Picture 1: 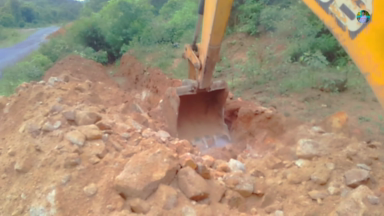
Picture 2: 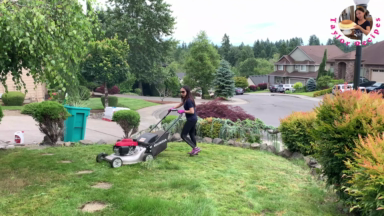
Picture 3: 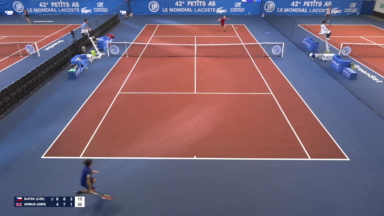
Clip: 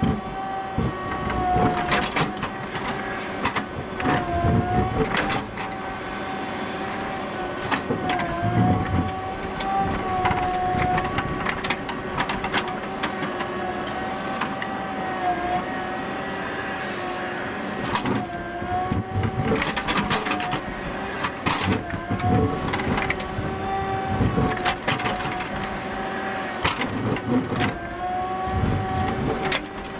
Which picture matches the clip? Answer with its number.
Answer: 1